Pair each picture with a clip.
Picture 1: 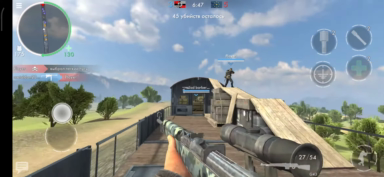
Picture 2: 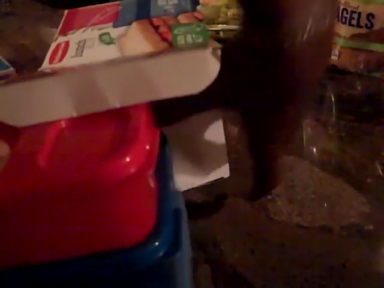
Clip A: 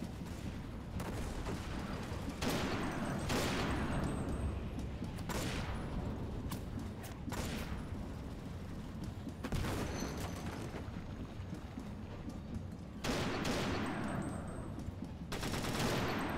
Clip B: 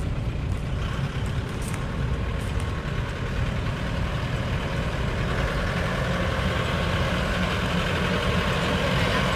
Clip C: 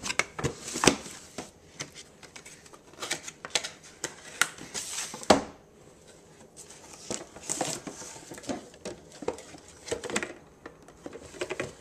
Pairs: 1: A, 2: C